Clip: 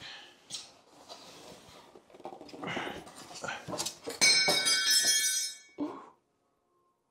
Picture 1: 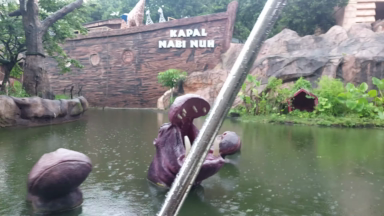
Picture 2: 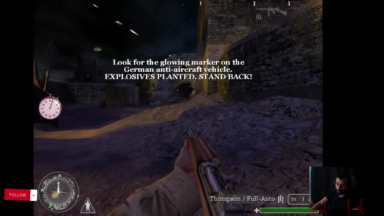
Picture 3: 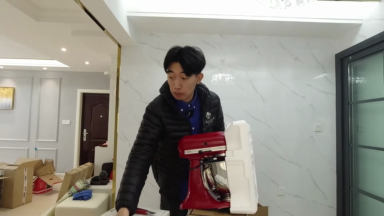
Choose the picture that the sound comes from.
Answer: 3